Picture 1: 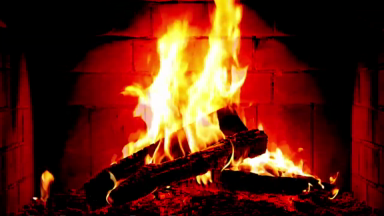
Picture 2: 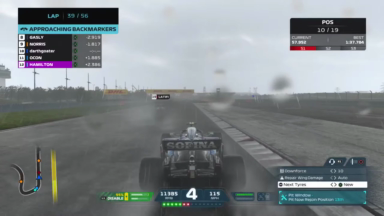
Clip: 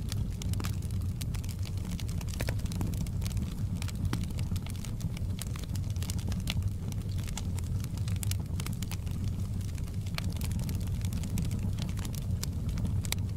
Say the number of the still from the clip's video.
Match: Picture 1